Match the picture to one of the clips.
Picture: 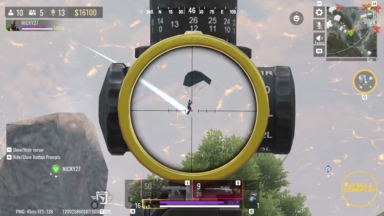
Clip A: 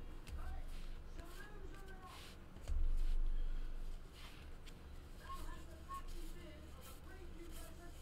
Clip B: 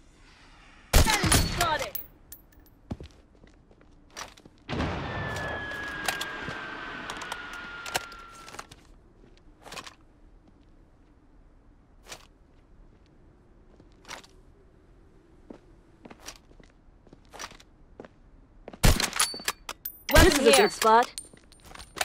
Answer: B